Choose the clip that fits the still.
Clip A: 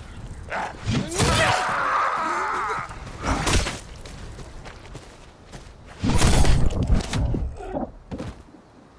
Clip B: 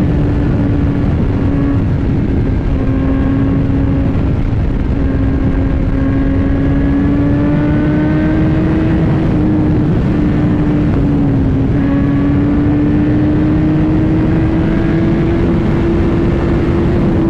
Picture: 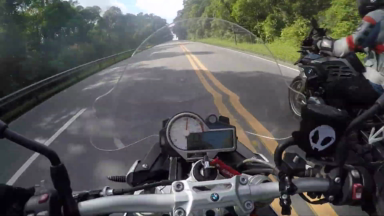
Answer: B